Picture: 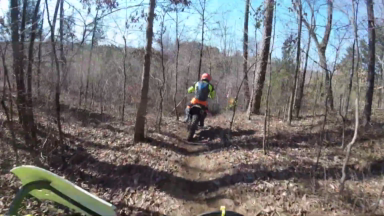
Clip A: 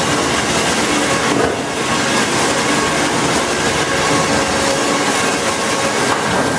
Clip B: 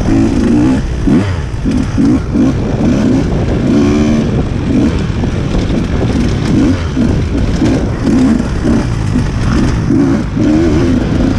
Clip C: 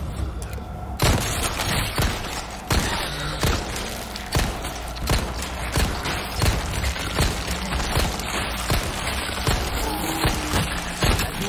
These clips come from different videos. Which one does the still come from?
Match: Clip B